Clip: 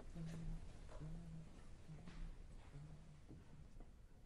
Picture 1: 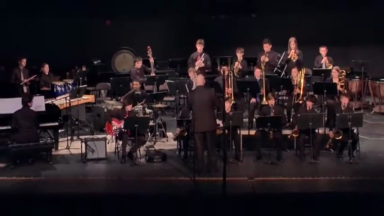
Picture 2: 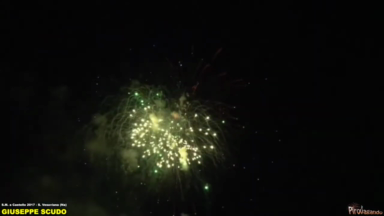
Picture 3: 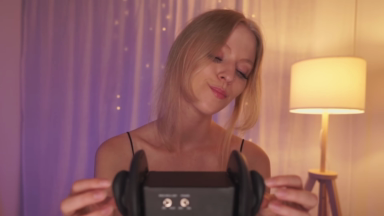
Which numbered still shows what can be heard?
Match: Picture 1